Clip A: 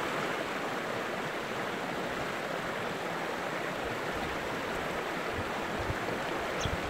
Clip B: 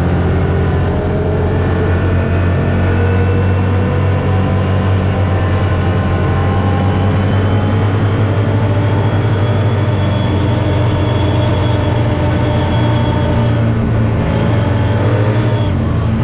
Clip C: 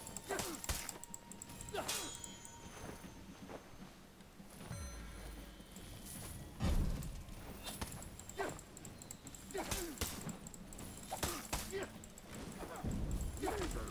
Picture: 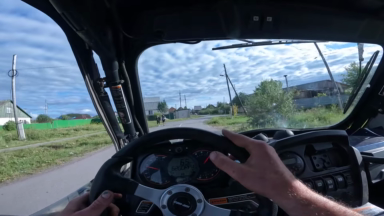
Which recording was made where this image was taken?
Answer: B